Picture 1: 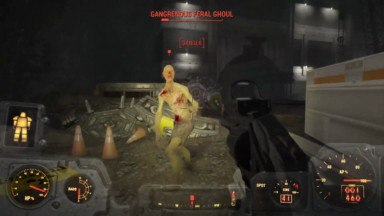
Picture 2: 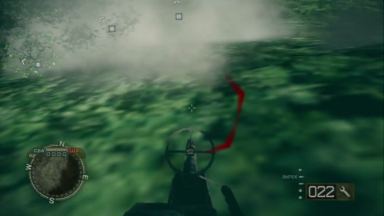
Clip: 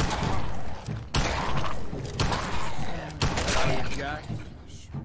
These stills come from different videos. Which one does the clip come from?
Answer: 1